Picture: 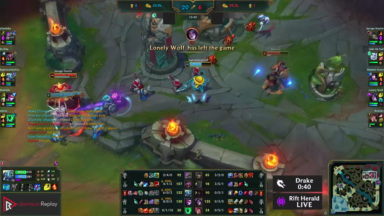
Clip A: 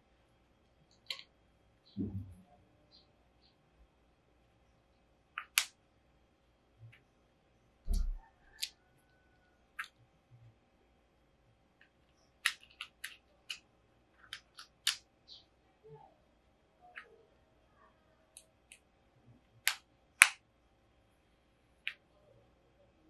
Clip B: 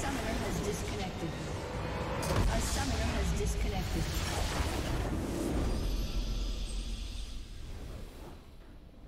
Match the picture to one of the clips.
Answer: B